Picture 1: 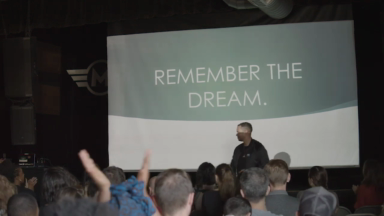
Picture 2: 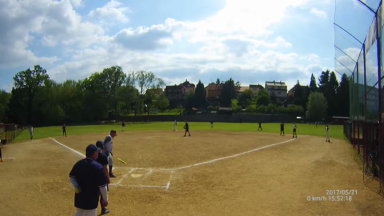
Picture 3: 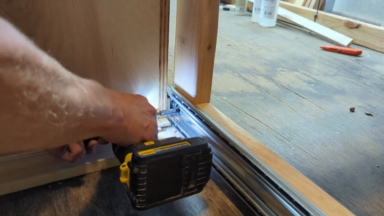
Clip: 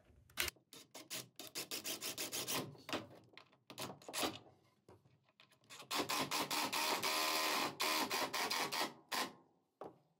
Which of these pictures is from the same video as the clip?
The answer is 3